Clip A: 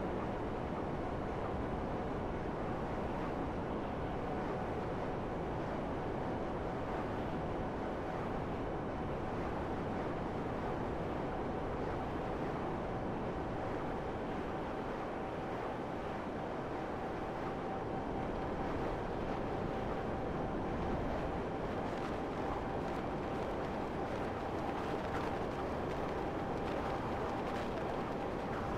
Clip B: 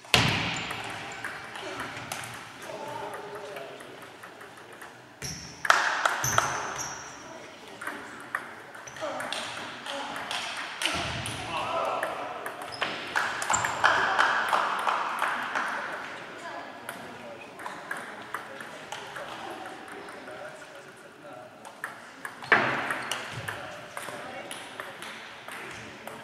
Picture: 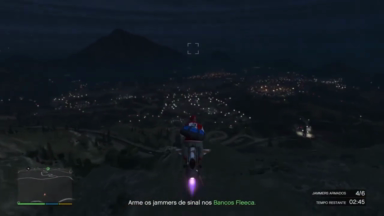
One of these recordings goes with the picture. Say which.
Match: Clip A